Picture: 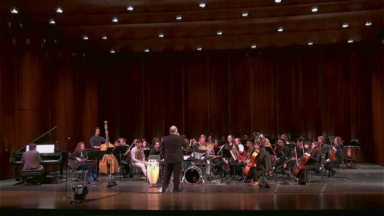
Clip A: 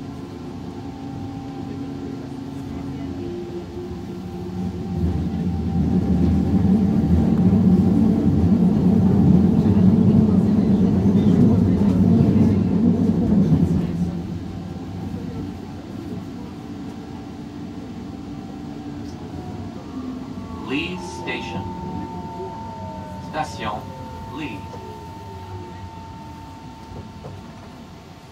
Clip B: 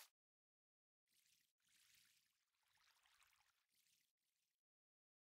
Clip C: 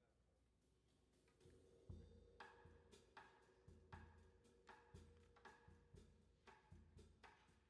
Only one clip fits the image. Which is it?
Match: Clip C